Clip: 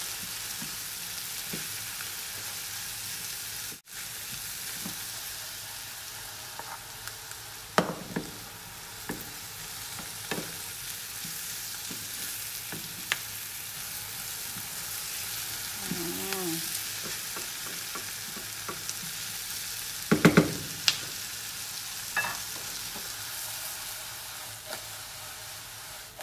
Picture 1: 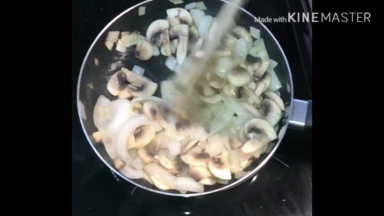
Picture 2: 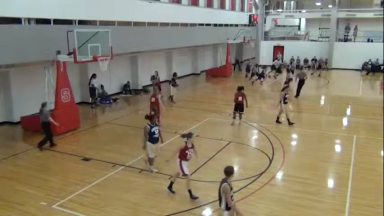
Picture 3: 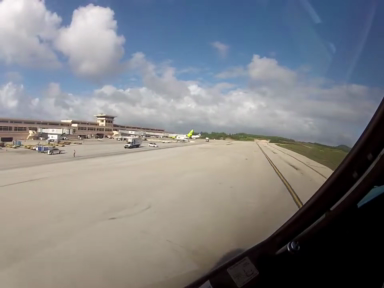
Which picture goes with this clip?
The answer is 1